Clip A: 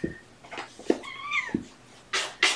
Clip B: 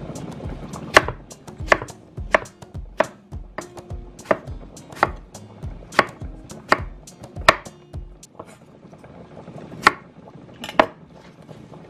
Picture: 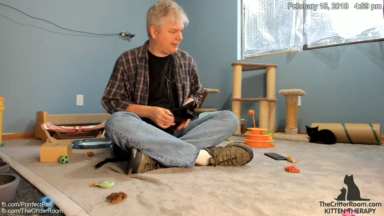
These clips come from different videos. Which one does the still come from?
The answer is A